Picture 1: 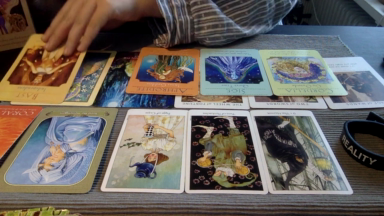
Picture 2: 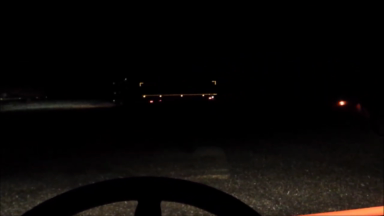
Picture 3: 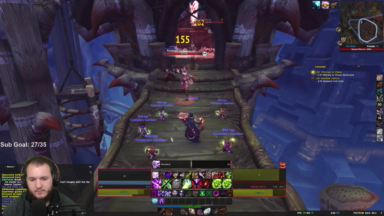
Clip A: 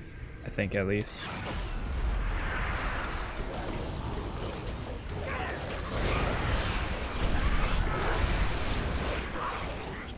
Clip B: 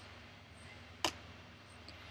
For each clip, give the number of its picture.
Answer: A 3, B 1